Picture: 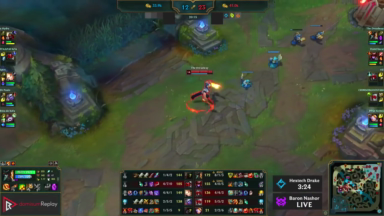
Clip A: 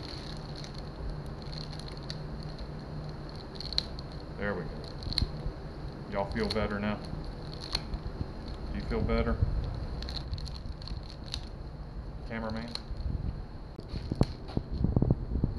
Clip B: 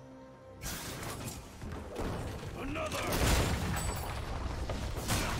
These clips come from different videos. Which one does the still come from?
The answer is B